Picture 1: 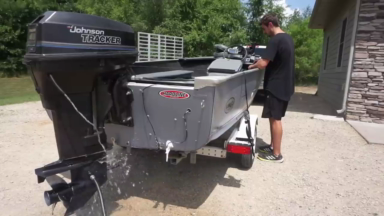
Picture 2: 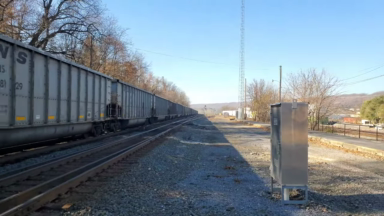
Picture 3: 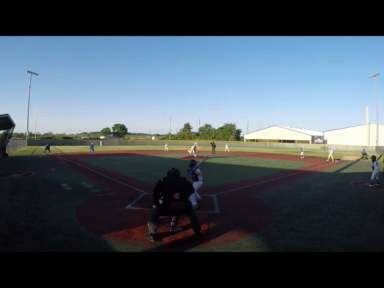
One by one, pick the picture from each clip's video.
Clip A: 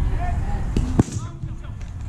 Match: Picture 3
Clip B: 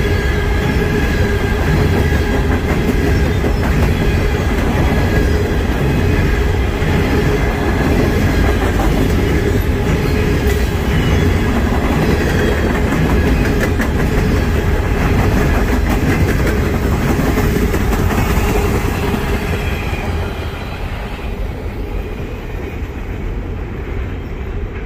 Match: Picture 2